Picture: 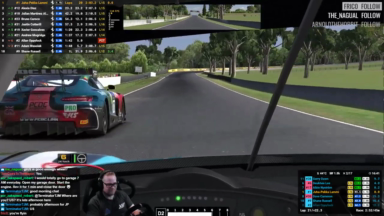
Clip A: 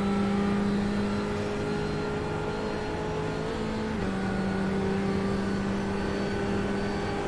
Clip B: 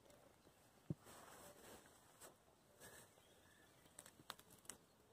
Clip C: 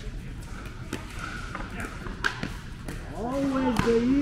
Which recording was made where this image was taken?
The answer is A